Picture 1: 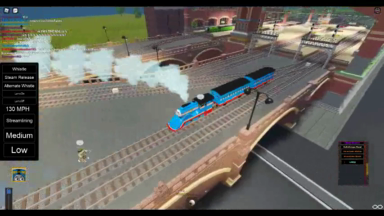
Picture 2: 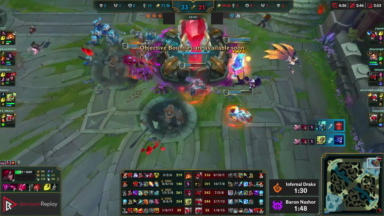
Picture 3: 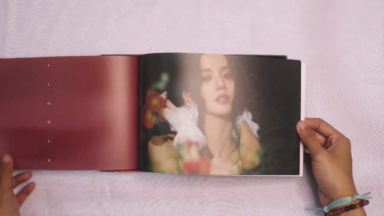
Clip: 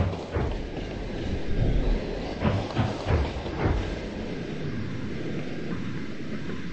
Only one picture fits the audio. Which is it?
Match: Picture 1